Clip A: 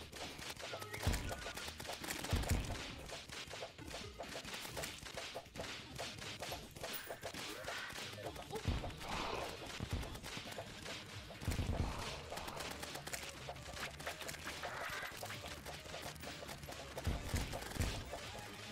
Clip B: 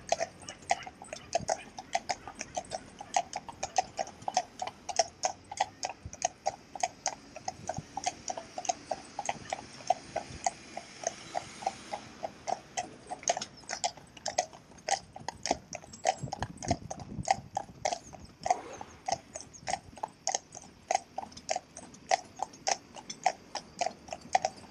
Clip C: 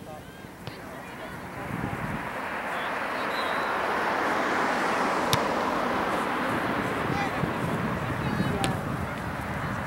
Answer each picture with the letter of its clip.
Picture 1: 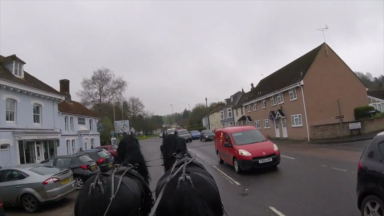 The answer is B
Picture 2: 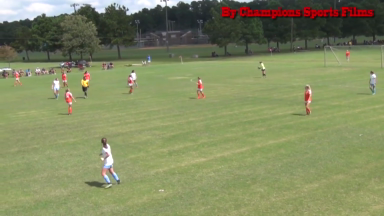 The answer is C